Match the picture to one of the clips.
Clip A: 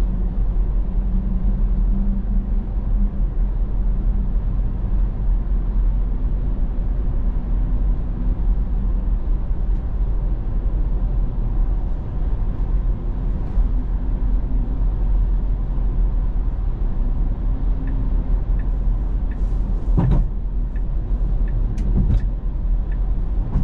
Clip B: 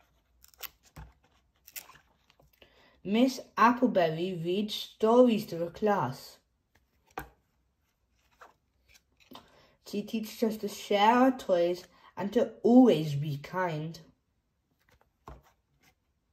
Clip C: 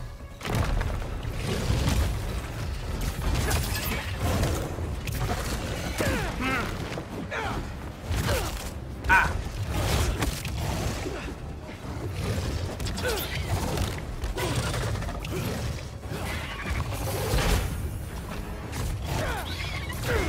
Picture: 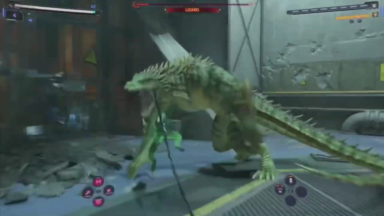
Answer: C